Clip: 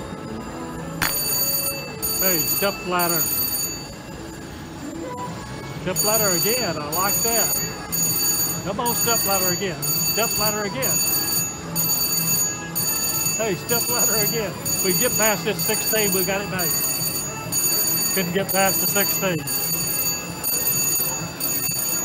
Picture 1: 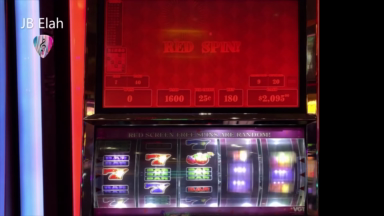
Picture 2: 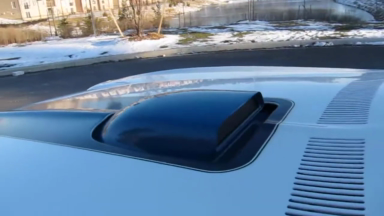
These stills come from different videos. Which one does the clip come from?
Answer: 1